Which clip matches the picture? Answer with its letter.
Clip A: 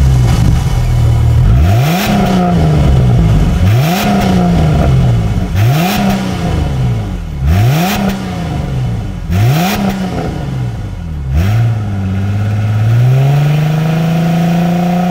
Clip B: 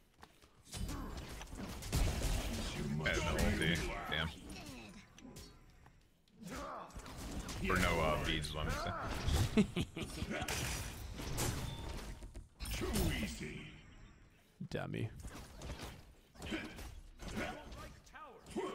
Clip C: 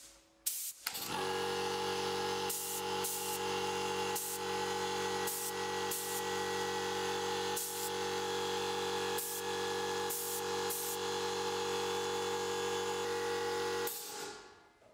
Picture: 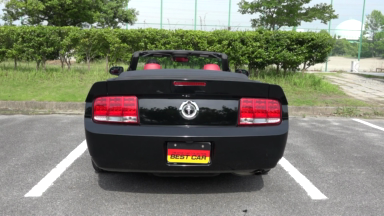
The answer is A